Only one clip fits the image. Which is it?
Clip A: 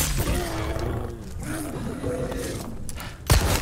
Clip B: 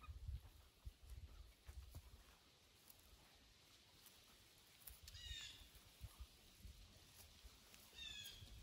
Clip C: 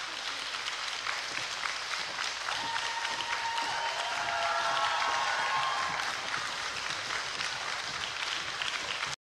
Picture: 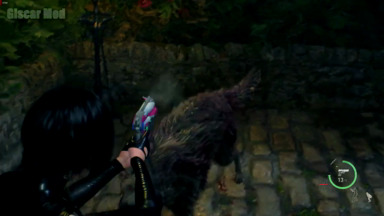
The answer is A